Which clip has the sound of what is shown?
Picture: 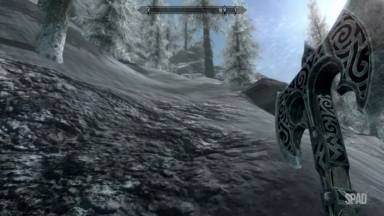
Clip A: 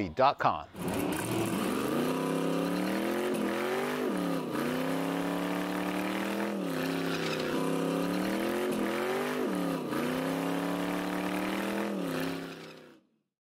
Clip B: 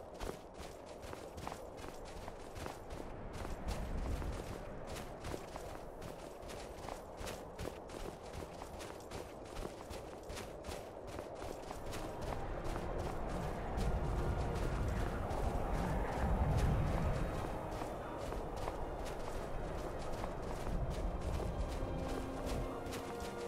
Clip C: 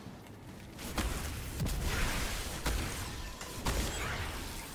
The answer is B